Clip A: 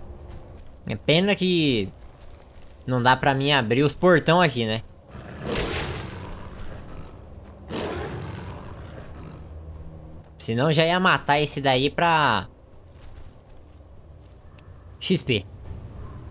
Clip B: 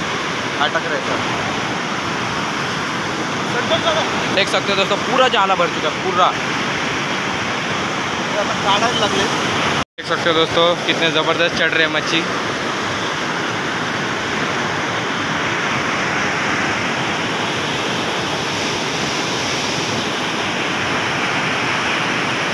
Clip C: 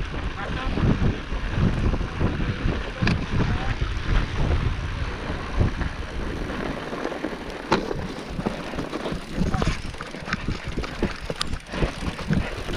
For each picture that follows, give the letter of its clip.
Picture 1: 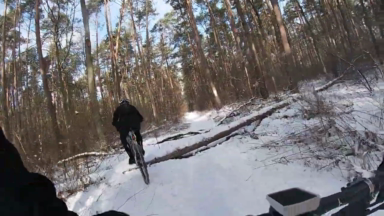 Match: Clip C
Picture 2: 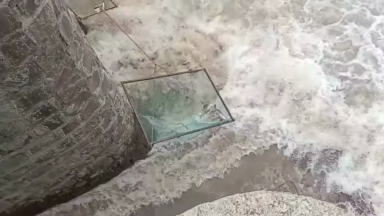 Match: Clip B